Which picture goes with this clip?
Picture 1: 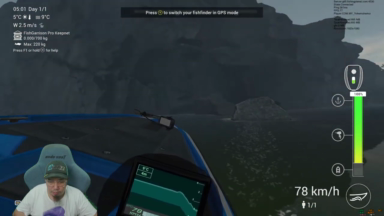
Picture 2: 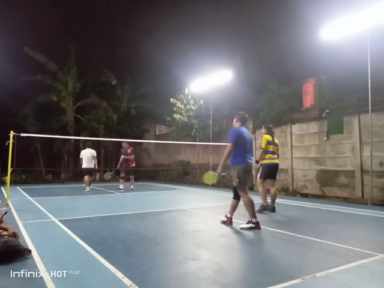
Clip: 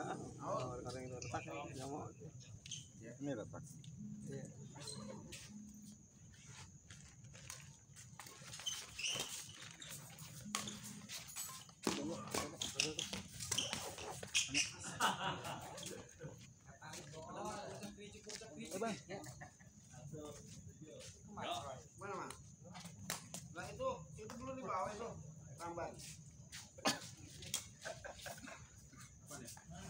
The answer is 2